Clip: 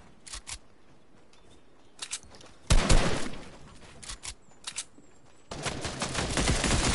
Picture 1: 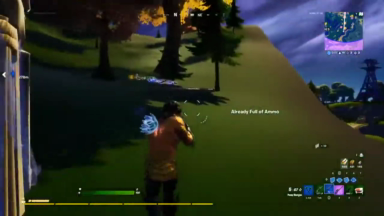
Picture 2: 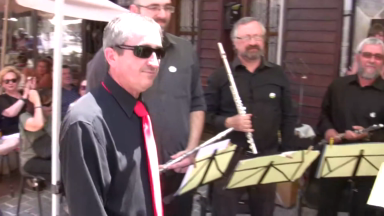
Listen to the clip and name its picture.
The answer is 1